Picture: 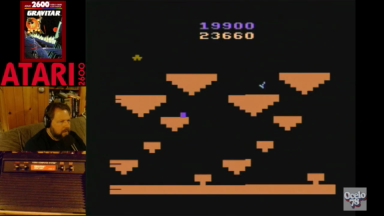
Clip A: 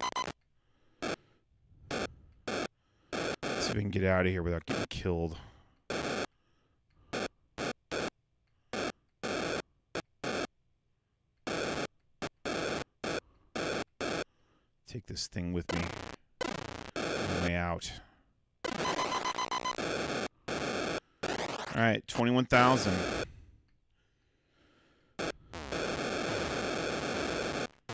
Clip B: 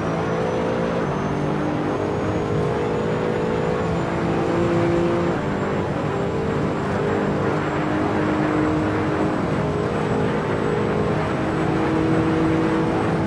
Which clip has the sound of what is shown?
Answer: A